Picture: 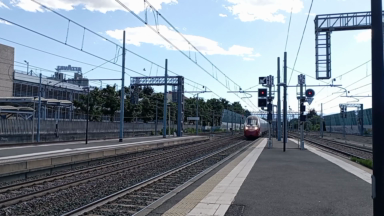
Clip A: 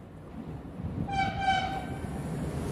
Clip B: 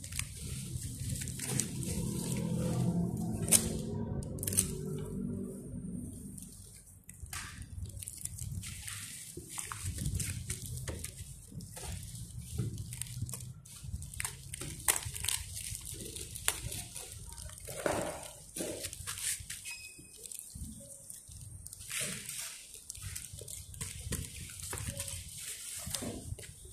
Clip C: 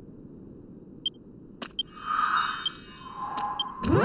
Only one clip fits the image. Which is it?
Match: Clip A